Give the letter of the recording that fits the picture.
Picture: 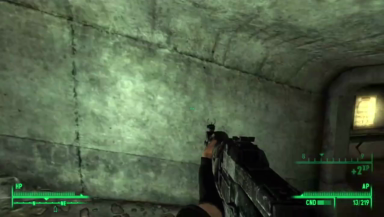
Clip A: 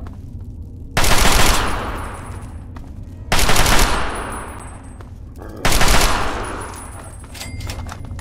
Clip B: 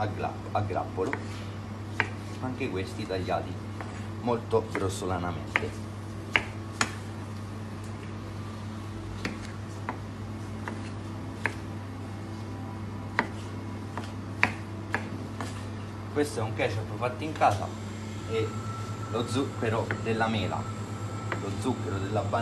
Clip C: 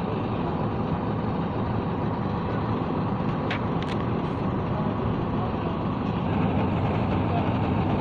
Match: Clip A